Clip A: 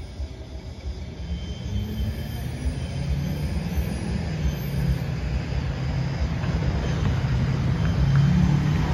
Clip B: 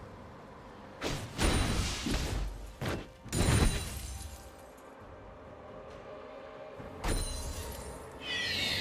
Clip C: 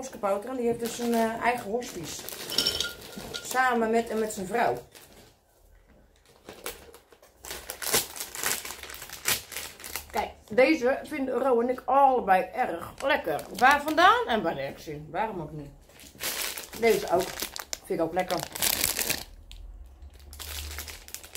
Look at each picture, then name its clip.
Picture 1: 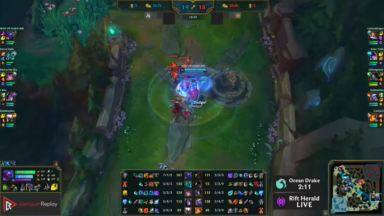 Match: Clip B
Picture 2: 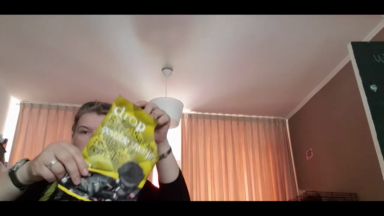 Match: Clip C